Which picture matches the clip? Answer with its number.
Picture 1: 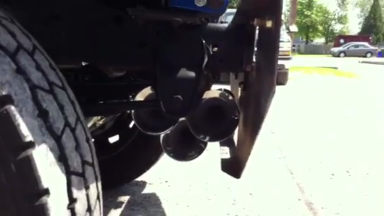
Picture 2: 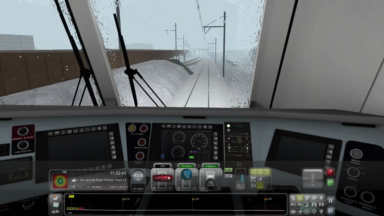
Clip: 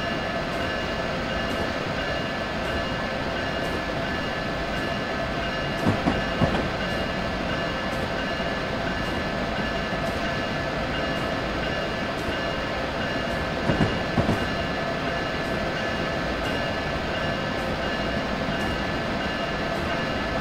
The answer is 2